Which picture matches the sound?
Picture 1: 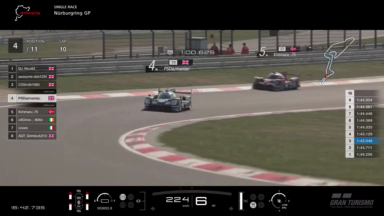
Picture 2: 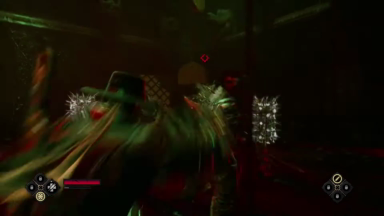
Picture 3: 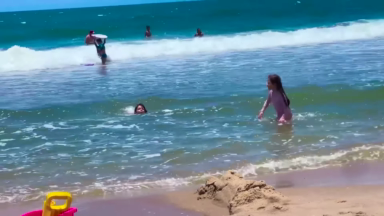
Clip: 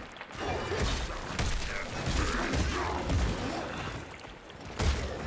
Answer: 2